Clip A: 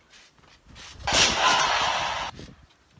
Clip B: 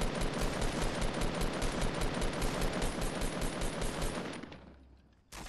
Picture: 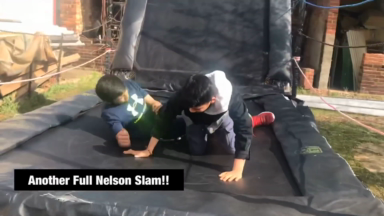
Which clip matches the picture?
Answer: A